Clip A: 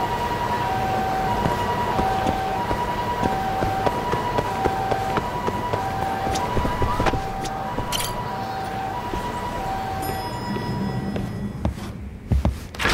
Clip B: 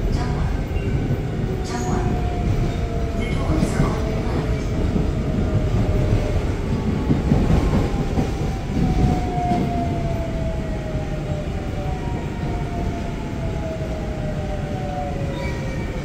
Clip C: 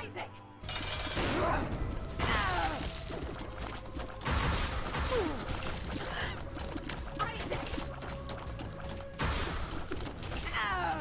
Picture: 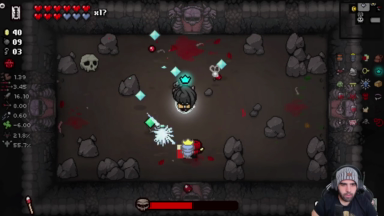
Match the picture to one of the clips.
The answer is C